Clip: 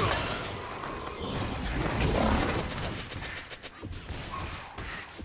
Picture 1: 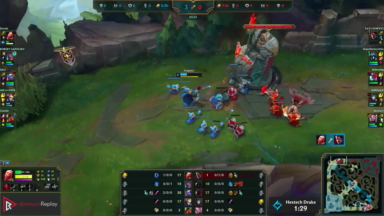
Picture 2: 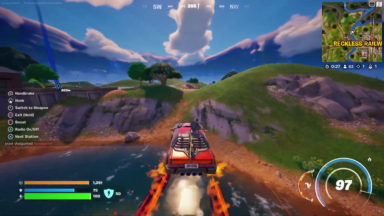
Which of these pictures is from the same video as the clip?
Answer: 1